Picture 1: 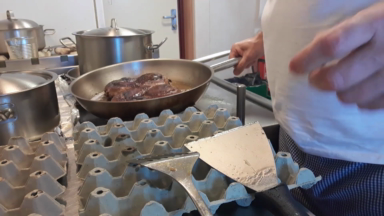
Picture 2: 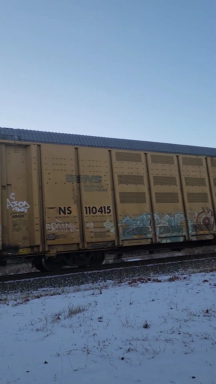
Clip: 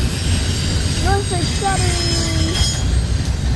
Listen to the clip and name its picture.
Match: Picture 2